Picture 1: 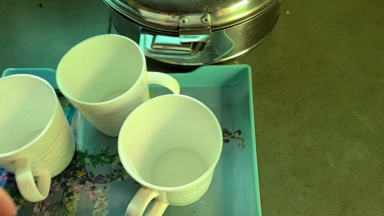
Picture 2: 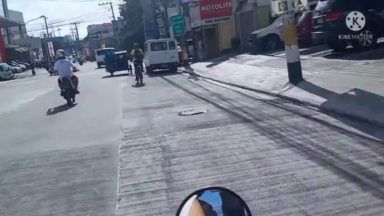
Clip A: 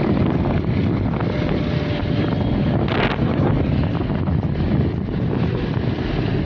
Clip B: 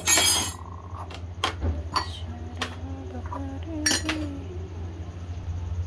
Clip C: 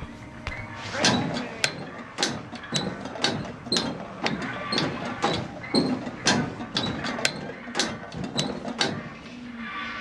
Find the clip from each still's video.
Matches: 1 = B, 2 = A